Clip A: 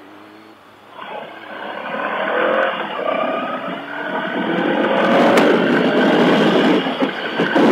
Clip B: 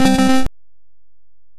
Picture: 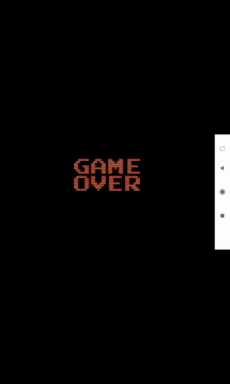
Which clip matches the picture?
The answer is B